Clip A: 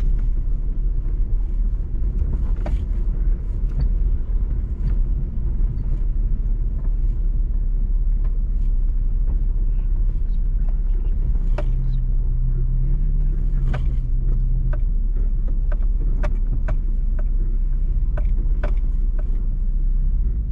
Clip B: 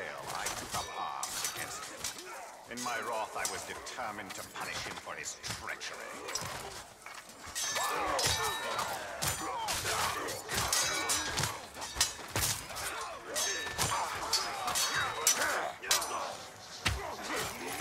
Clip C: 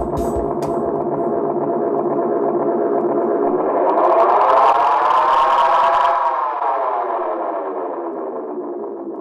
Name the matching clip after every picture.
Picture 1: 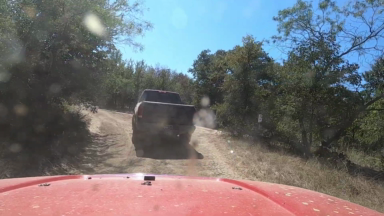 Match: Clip A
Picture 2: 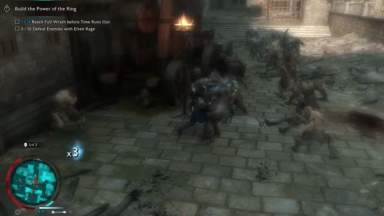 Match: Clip B